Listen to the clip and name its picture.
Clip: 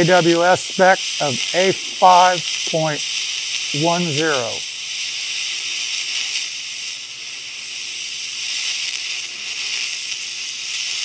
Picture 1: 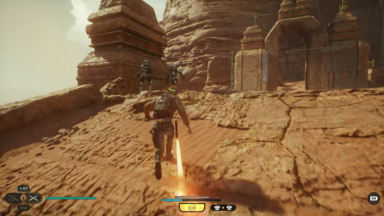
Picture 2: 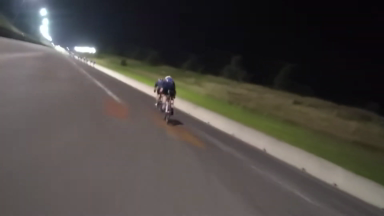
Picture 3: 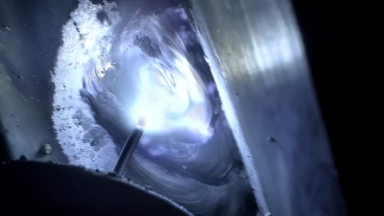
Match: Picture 3